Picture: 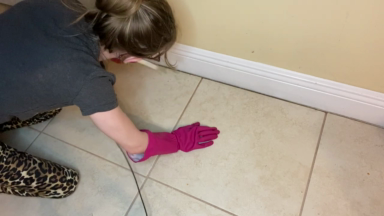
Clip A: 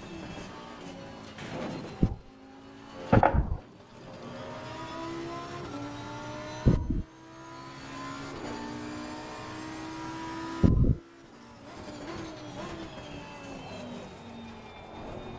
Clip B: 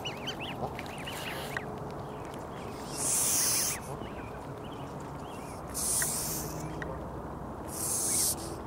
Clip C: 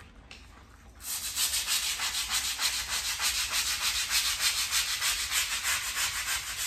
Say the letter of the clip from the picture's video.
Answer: C